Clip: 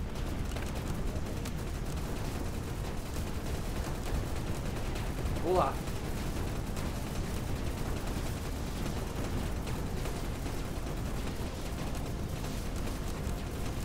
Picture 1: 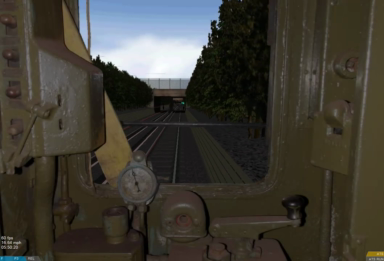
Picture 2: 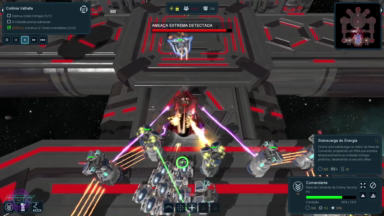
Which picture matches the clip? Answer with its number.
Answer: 2